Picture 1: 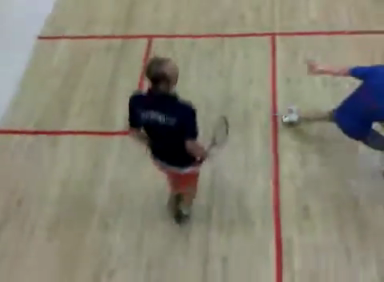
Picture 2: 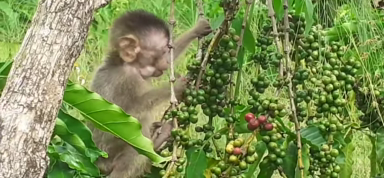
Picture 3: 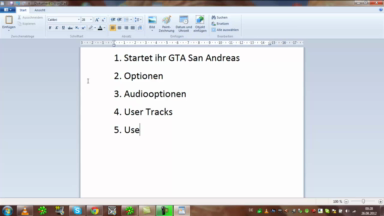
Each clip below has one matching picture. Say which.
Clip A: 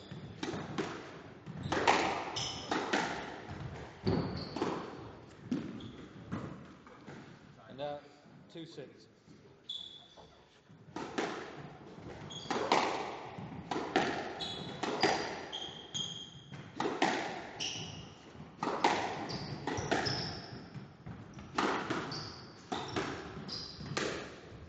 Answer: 1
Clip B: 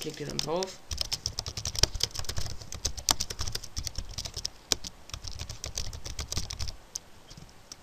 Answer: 3